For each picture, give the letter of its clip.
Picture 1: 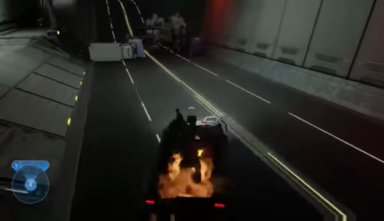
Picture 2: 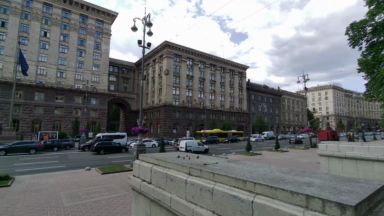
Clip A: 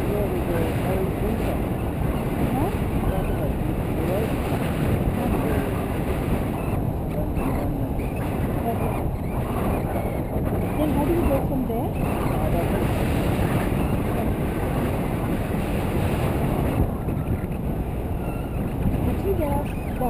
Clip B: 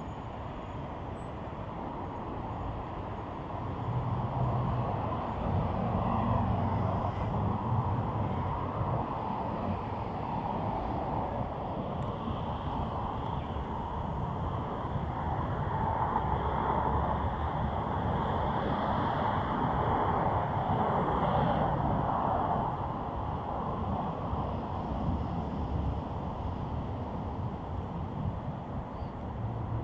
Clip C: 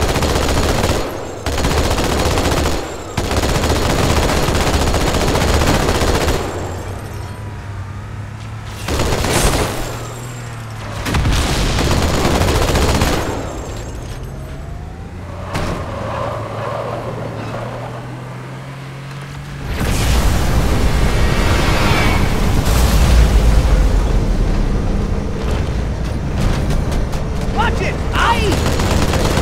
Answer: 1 C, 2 B